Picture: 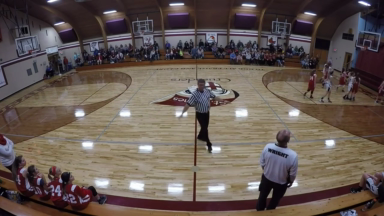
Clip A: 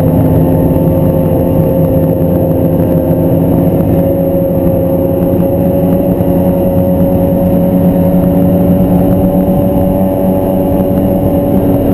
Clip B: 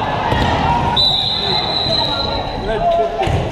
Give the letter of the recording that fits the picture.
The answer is B